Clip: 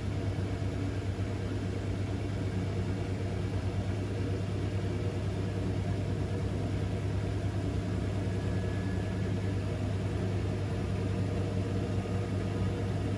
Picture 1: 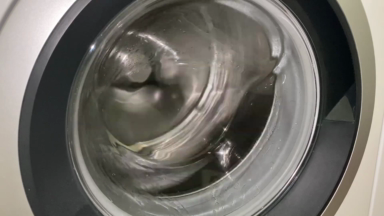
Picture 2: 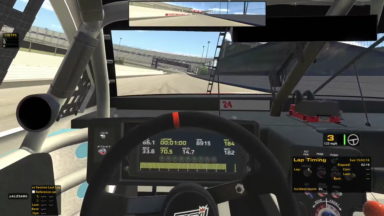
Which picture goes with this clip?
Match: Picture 1